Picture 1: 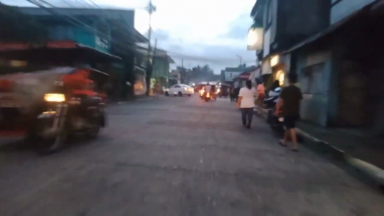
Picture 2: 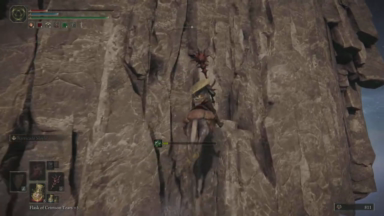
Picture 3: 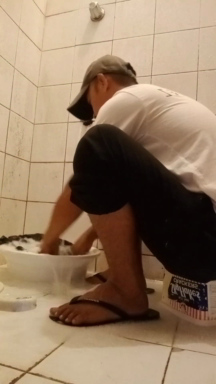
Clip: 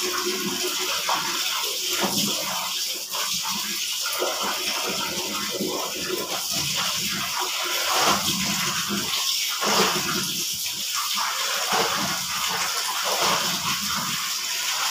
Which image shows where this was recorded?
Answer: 3